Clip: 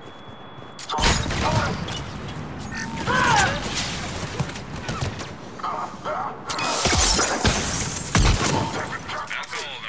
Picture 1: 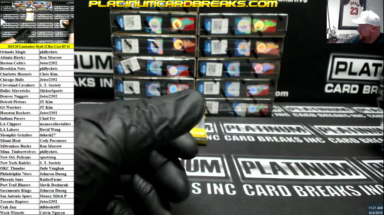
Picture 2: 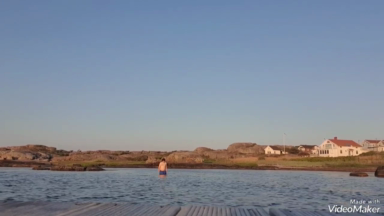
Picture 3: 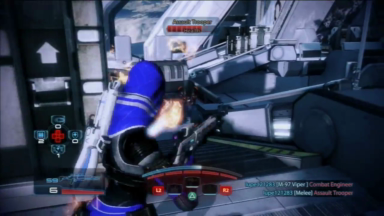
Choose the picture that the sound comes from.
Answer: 3